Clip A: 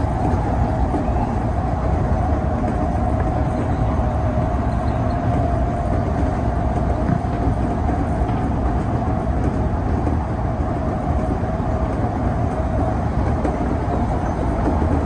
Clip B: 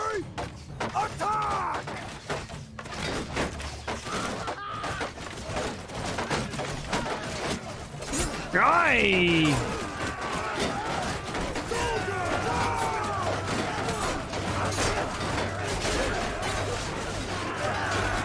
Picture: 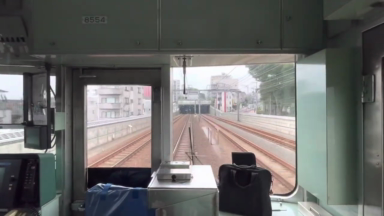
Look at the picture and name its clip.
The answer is A